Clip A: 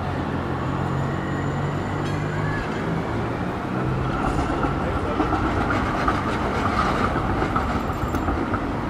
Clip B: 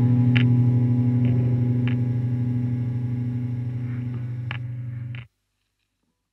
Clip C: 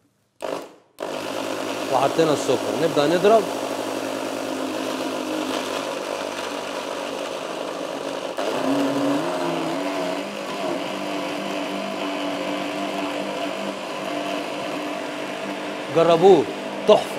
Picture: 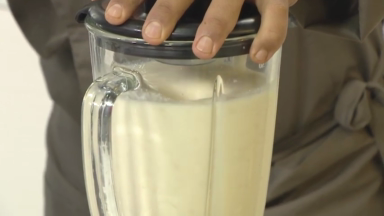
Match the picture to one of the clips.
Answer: C